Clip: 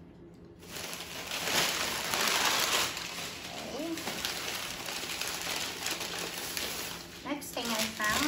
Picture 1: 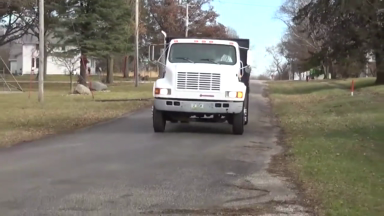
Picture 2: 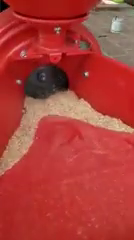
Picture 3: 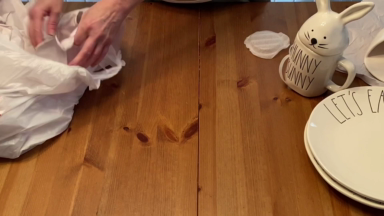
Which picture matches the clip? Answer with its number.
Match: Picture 3